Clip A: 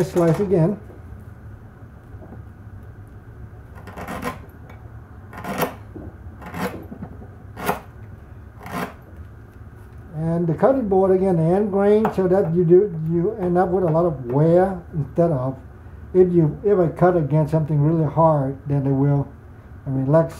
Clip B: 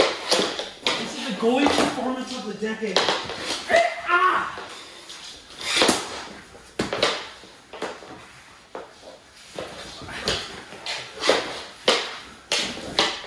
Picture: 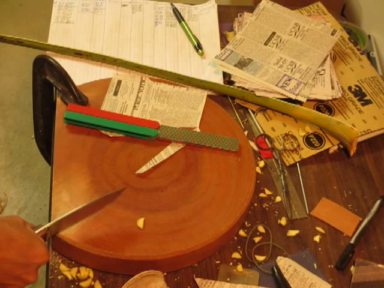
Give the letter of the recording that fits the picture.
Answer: A